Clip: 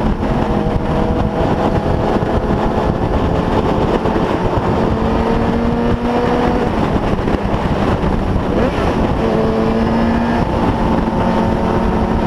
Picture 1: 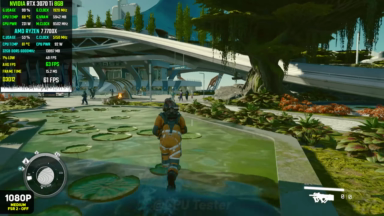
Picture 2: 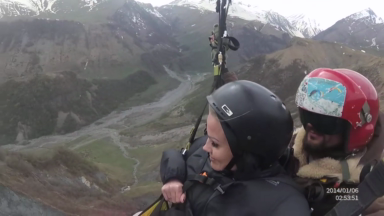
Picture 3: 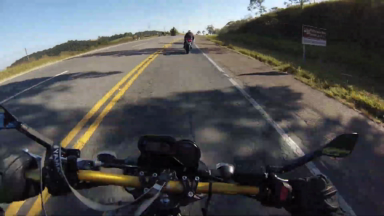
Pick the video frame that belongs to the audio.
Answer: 3